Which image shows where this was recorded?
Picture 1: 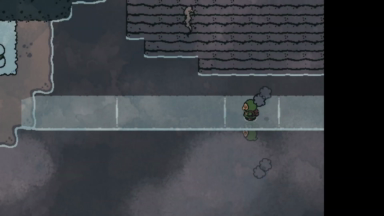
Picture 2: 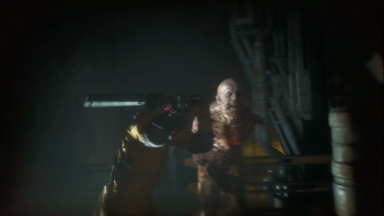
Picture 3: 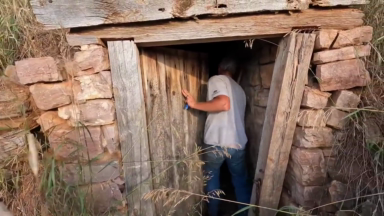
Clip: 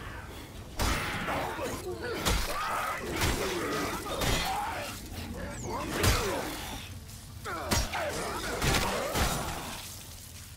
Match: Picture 2